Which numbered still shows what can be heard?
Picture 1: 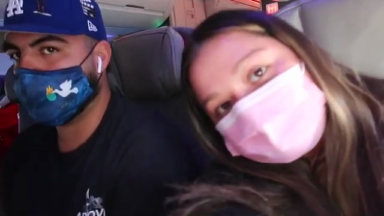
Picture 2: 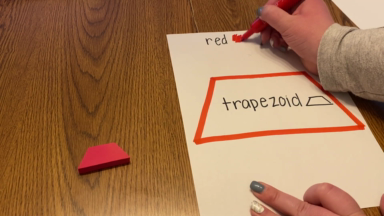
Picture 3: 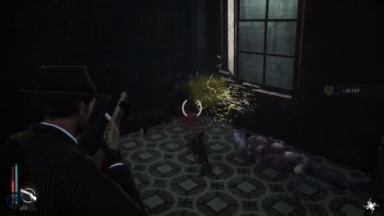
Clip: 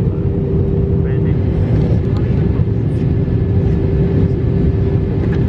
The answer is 1